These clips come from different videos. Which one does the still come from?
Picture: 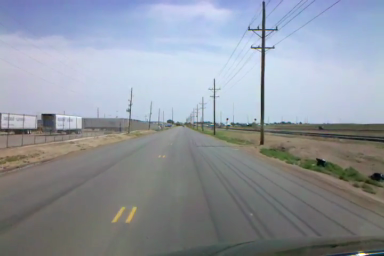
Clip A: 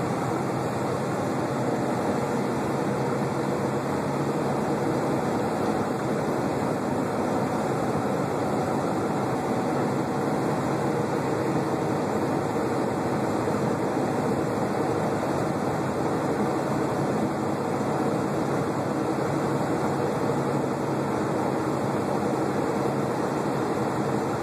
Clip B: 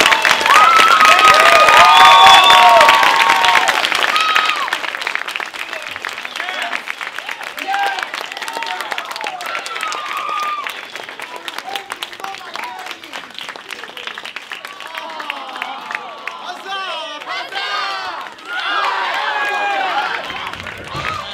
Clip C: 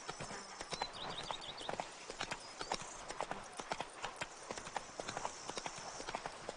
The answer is A